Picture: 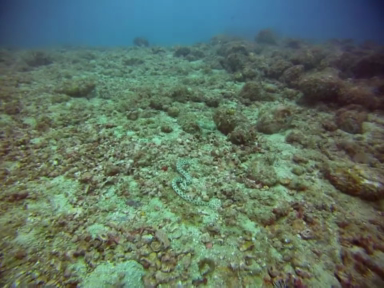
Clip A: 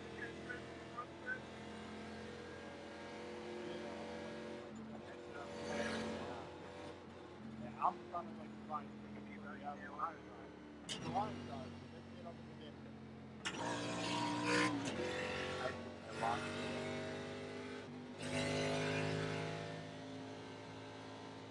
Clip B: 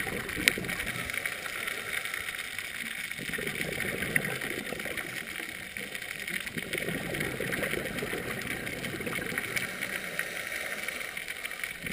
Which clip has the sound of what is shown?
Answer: B